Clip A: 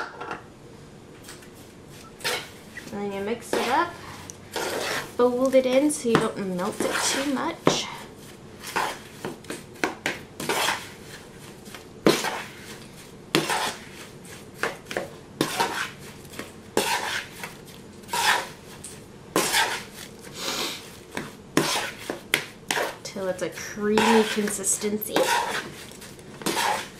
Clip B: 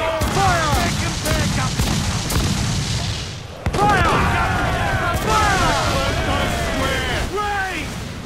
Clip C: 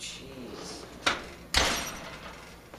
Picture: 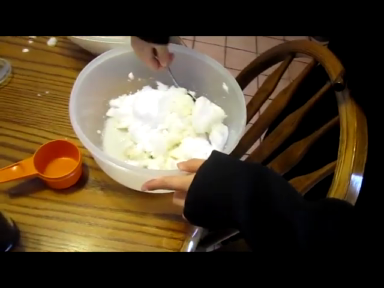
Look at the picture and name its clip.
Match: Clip A